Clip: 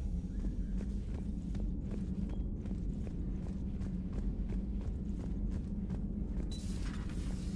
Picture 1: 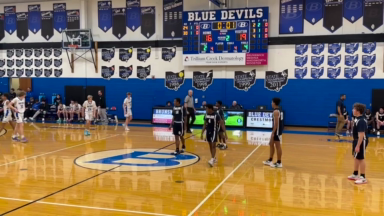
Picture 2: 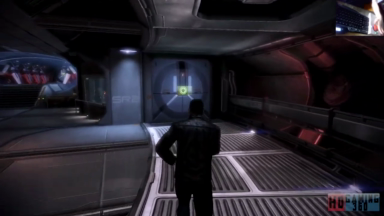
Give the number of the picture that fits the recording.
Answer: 2